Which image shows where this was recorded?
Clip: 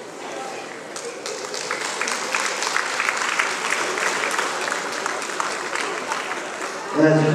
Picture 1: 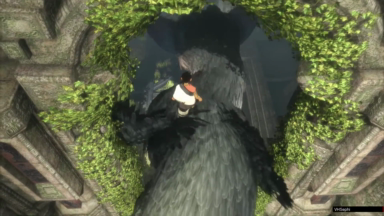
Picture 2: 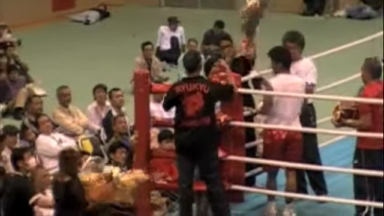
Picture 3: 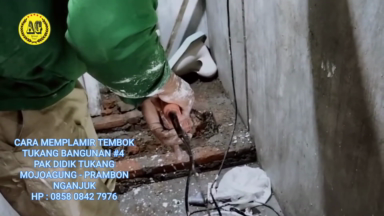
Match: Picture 2